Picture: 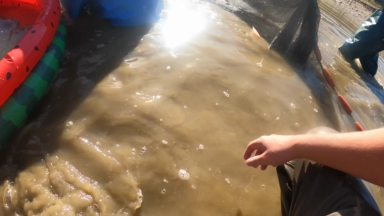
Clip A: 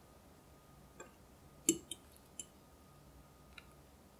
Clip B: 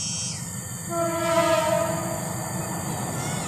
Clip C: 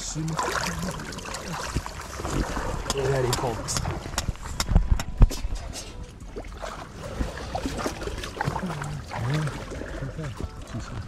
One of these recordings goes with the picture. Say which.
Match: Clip C